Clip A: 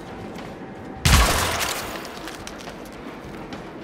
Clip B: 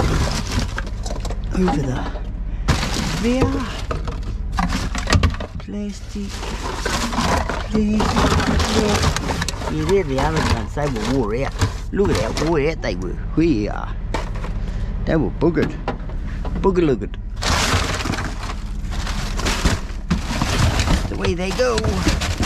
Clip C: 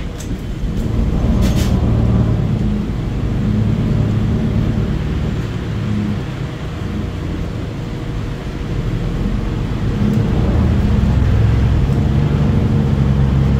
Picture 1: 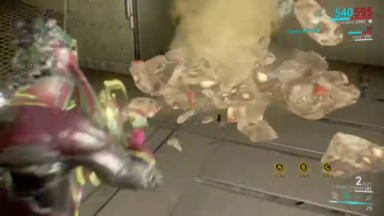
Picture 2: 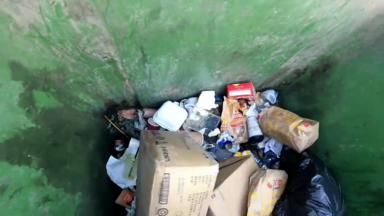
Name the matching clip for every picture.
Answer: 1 A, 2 B